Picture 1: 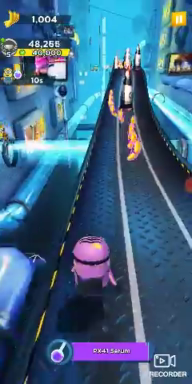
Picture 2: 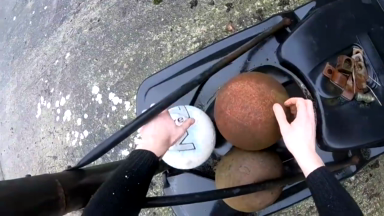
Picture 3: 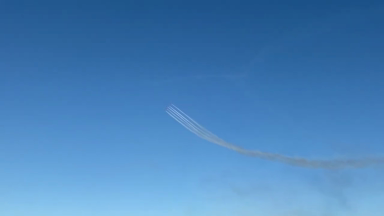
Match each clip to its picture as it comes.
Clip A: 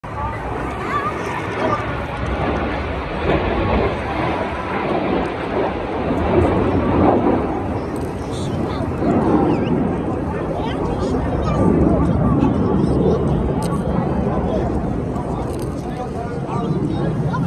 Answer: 3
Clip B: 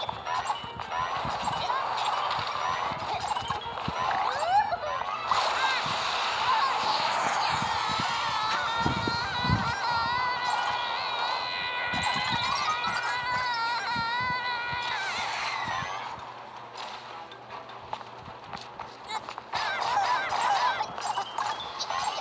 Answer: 1